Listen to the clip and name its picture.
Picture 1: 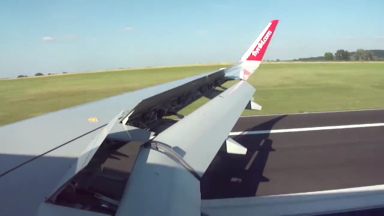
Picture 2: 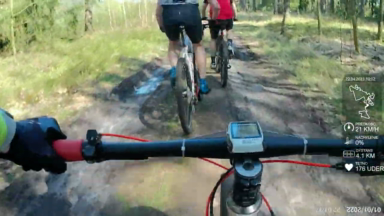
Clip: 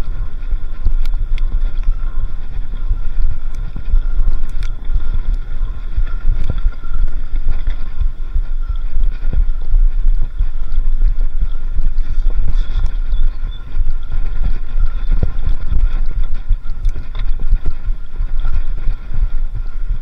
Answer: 2